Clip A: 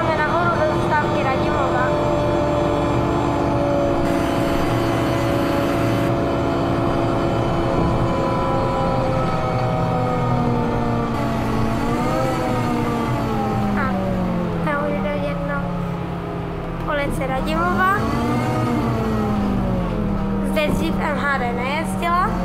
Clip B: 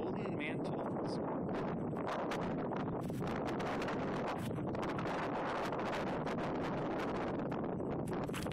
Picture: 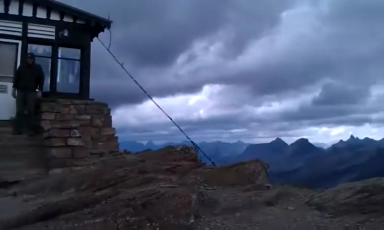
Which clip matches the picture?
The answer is B